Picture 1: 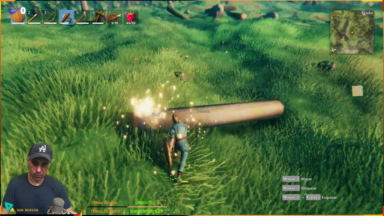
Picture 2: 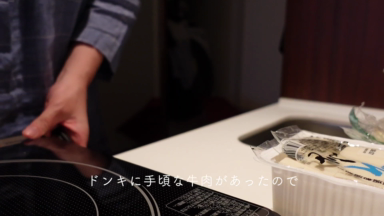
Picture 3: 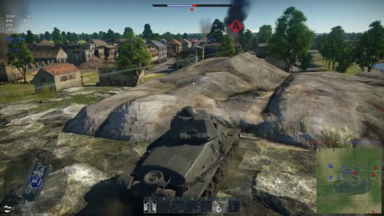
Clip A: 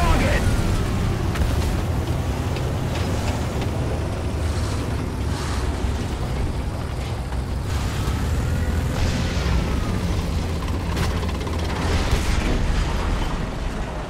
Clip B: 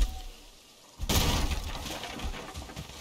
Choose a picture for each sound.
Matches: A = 3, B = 1